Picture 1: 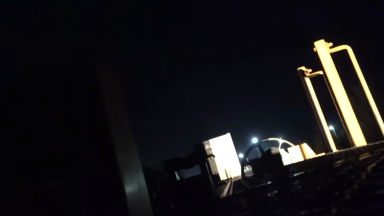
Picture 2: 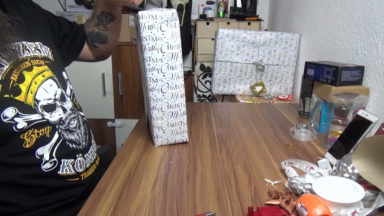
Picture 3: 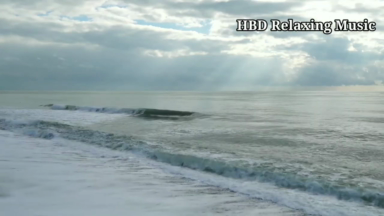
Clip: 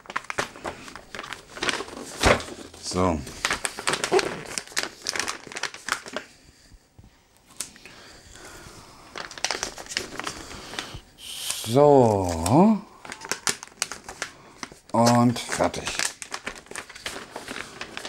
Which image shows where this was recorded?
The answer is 2